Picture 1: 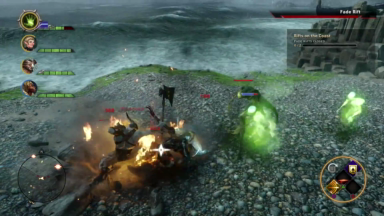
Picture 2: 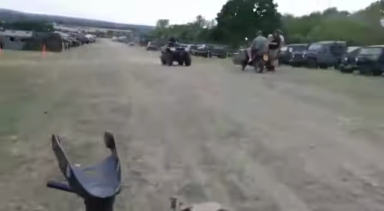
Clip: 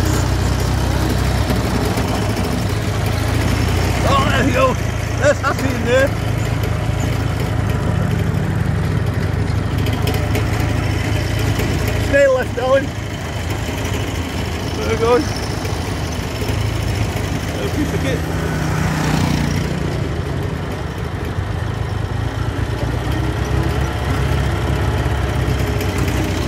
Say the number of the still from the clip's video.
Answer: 2